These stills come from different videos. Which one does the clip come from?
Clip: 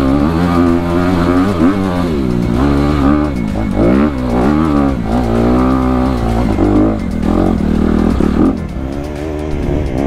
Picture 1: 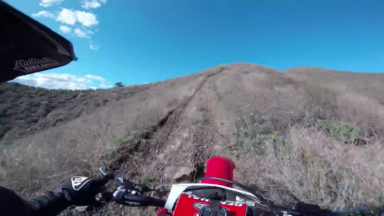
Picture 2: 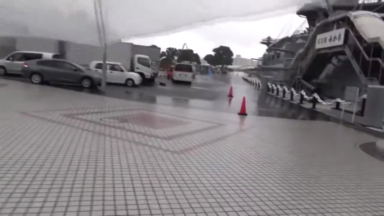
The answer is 1